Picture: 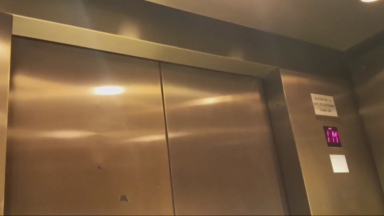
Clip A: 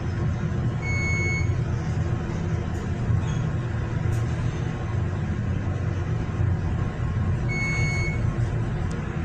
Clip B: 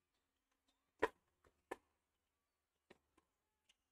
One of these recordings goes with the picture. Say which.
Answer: A